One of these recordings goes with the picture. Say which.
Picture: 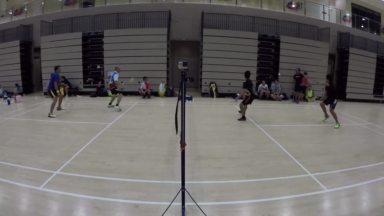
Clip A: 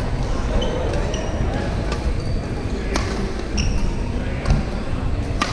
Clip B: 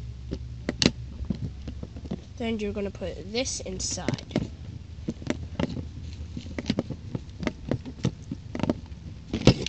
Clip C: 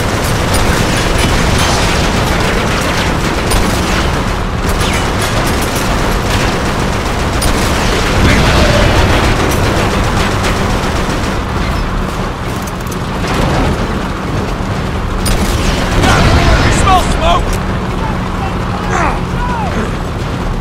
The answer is A